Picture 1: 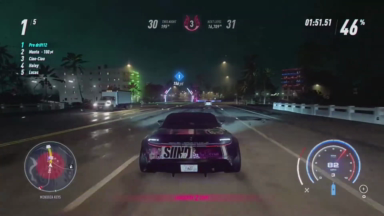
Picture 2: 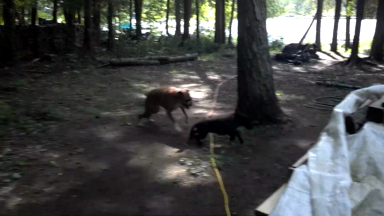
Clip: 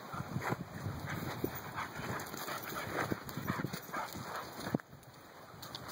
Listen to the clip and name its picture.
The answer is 2